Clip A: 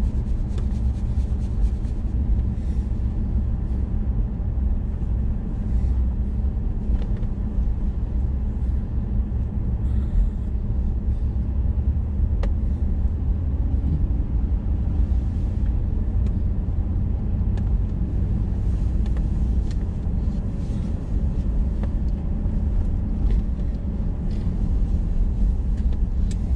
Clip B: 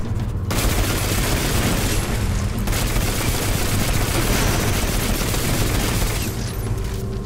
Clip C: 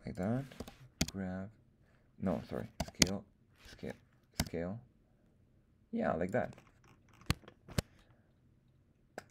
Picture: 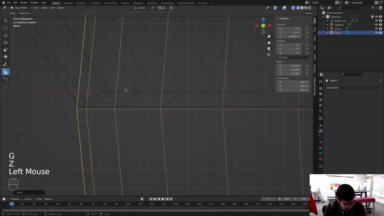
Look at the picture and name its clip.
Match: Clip C